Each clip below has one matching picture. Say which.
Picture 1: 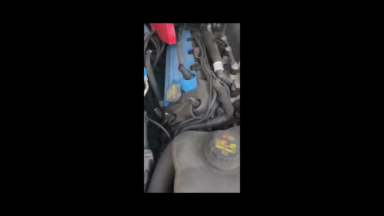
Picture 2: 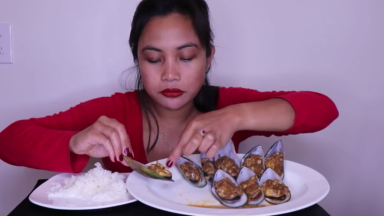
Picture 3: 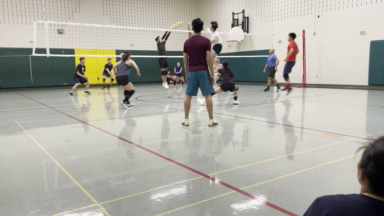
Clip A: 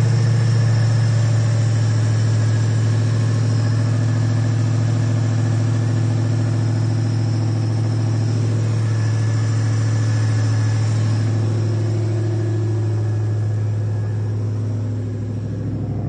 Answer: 1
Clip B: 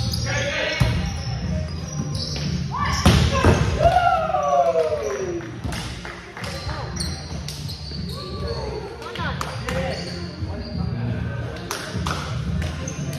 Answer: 3